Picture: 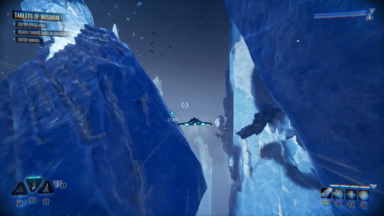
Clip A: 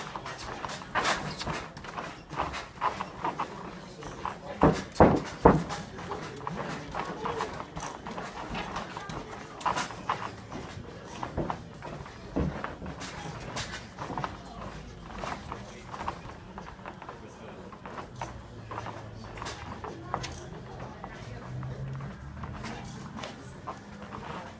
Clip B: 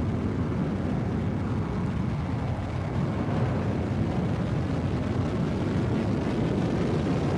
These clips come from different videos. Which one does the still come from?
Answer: B